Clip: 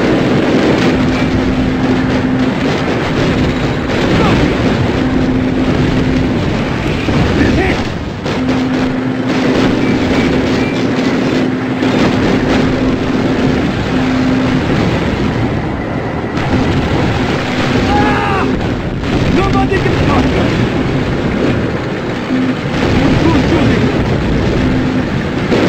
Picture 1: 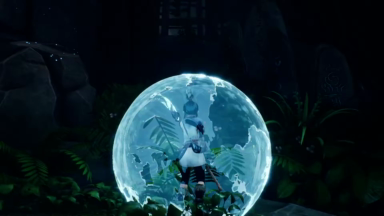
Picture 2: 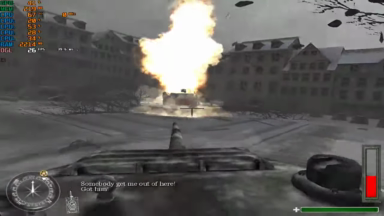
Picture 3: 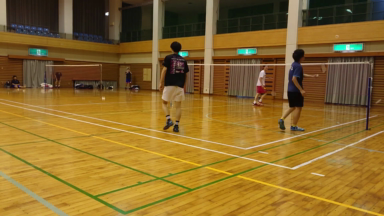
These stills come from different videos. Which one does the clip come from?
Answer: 2